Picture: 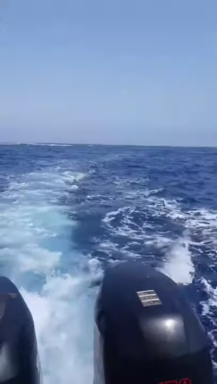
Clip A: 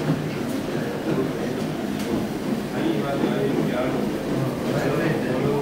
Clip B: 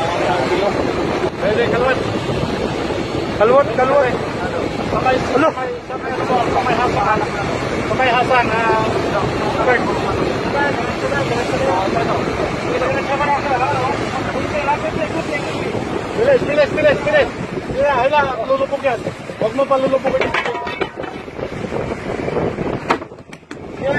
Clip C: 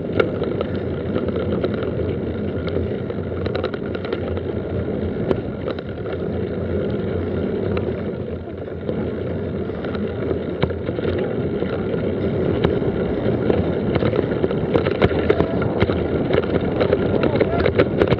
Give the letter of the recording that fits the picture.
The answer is B